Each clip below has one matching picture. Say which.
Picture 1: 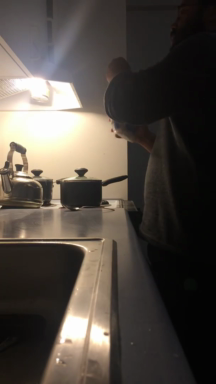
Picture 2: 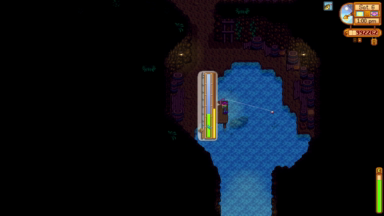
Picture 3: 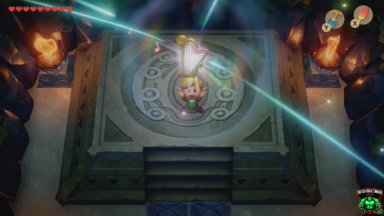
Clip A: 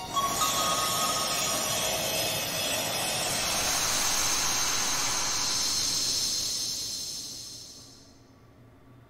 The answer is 3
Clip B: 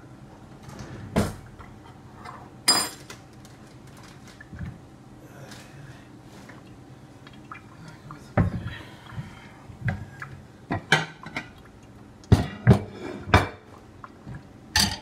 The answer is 1